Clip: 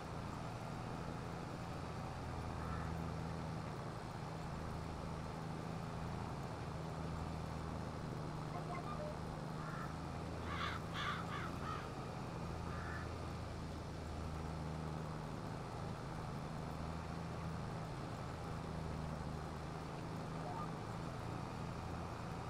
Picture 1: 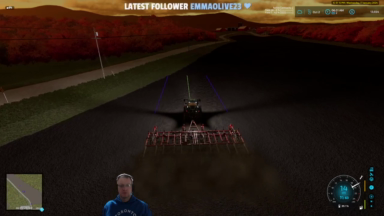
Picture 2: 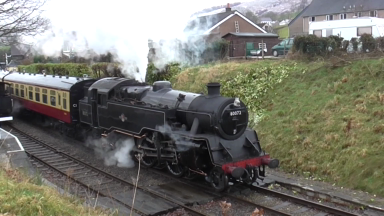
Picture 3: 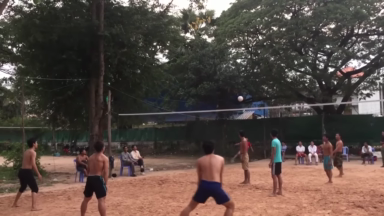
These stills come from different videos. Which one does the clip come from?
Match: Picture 1